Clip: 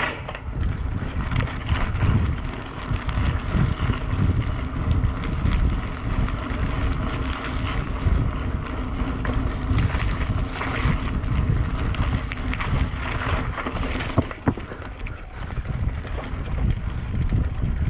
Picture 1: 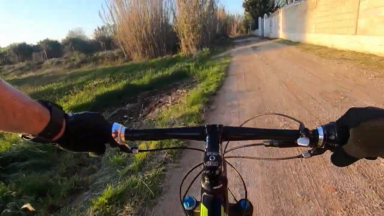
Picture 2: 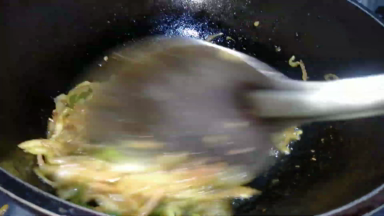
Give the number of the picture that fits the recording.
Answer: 1